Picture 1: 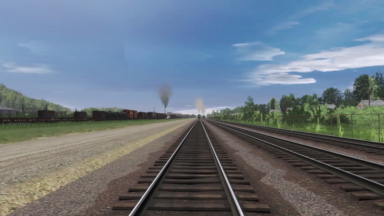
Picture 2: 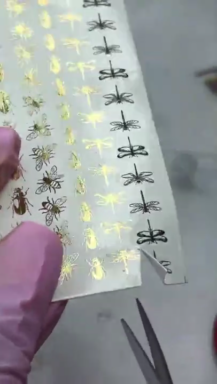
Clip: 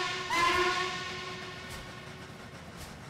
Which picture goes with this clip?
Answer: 1